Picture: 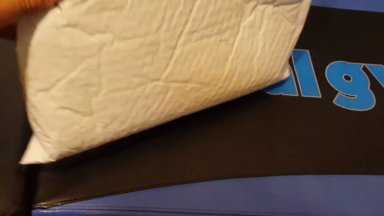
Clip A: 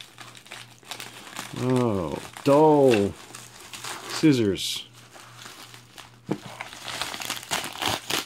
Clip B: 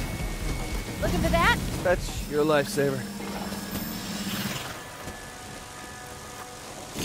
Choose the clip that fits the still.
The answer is A